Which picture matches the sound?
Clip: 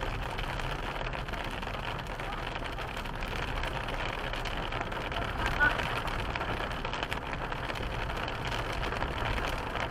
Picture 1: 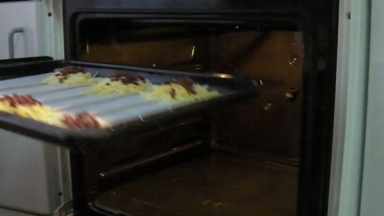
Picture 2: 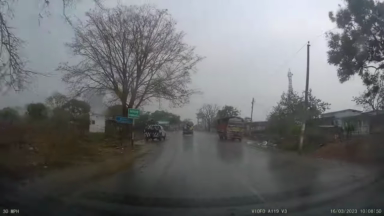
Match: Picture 2